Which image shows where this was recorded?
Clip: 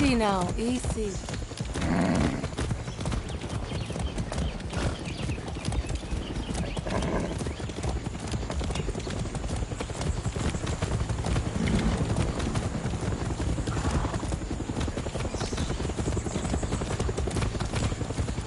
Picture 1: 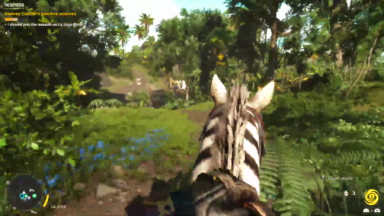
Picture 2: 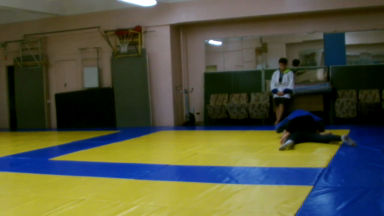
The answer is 1